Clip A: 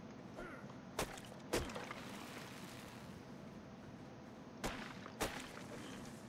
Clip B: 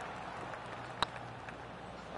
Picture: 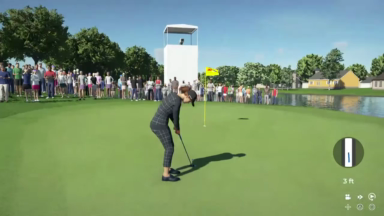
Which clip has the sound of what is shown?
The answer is B